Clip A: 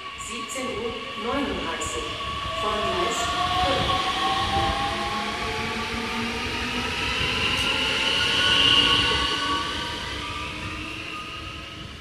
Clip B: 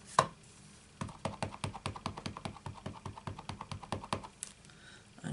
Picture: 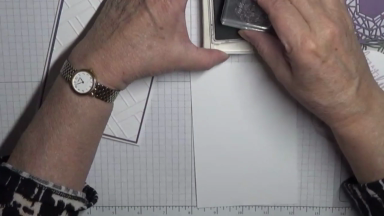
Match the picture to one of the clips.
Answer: B